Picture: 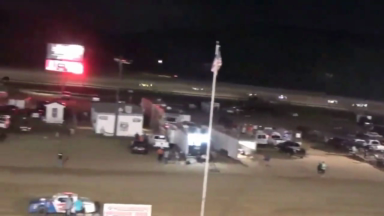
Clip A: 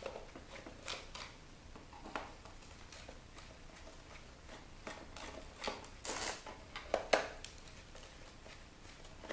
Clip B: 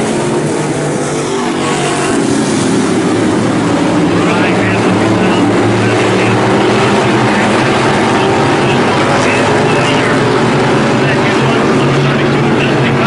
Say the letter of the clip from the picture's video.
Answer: B